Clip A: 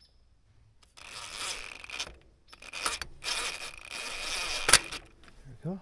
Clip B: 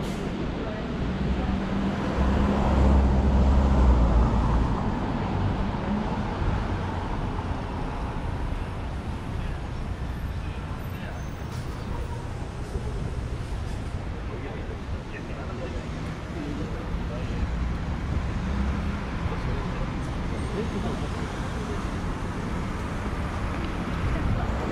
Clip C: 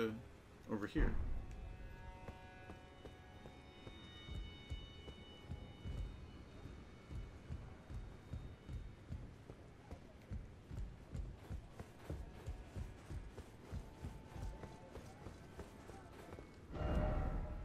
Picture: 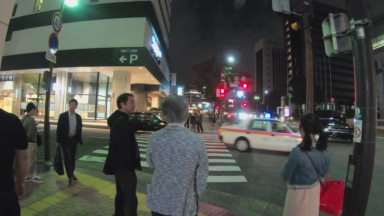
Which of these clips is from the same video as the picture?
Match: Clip B